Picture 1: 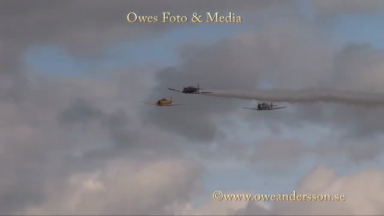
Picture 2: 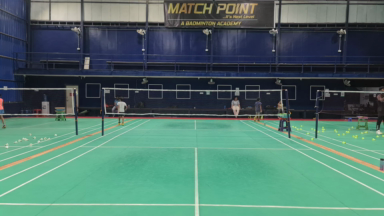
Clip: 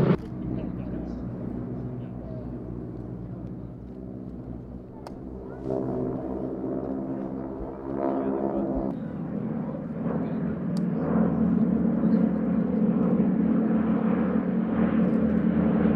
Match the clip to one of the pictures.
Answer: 1